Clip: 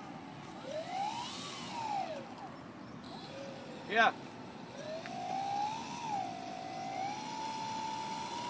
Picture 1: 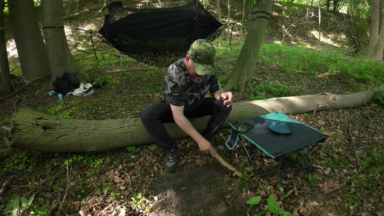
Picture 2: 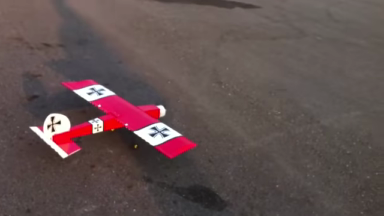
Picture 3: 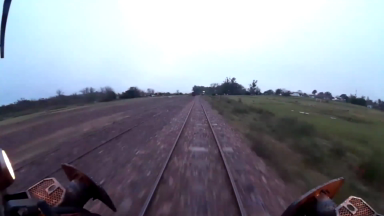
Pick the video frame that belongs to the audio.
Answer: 2